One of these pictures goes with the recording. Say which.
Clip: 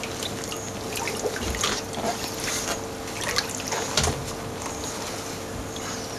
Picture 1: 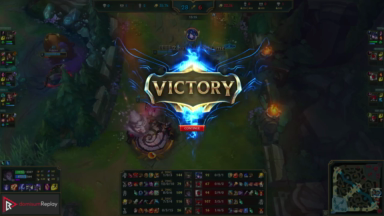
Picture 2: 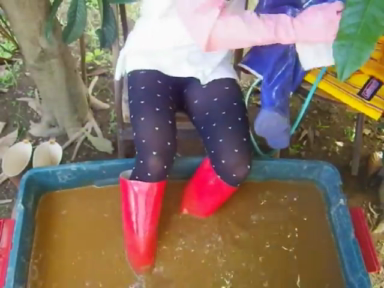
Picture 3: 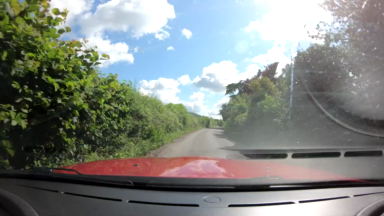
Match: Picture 2